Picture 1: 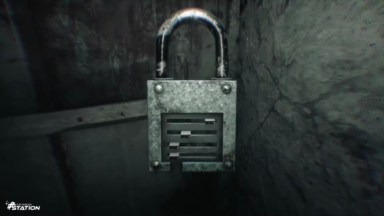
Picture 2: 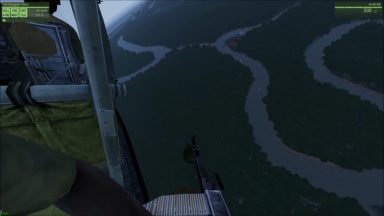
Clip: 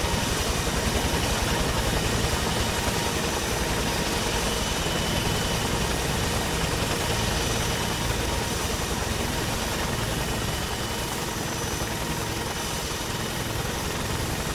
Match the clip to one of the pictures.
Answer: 2